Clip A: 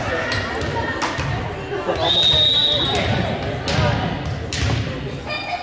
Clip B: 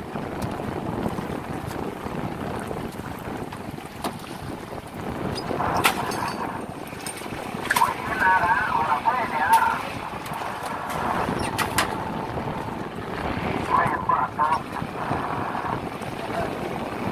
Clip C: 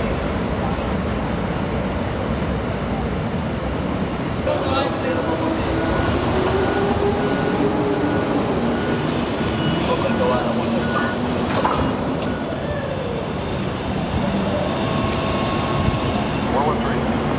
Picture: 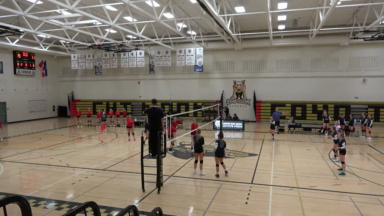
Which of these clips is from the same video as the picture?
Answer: A